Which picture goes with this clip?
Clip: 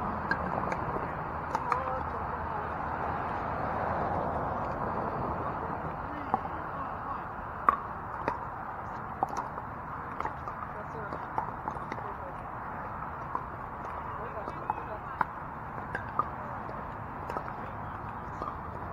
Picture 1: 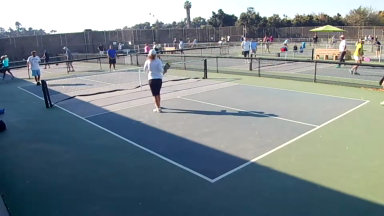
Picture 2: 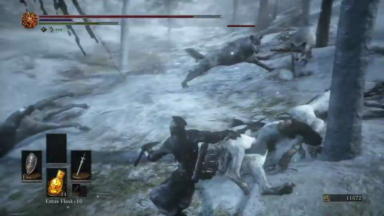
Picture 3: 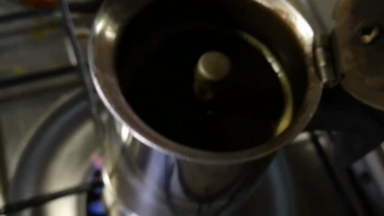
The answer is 1